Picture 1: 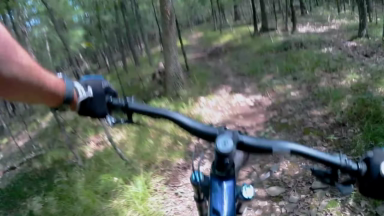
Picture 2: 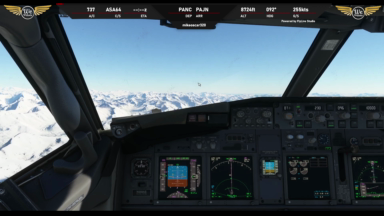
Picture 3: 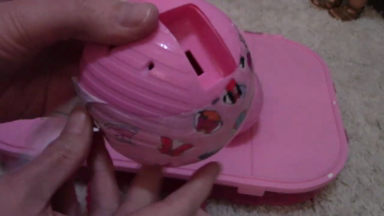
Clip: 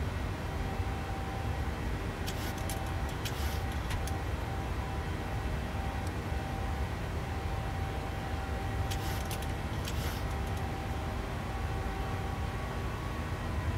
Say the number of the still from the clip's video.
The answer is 2